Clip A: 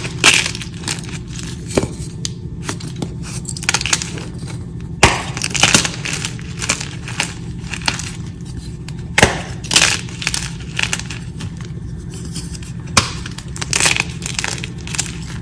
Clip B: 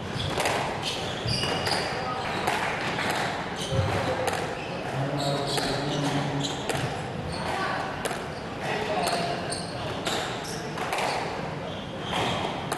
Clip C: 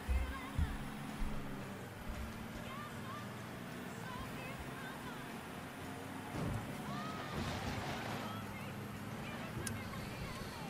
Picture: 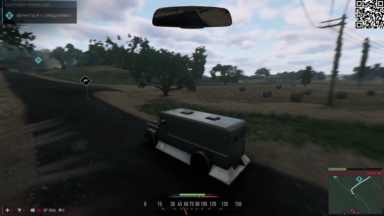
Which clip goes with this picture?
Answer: C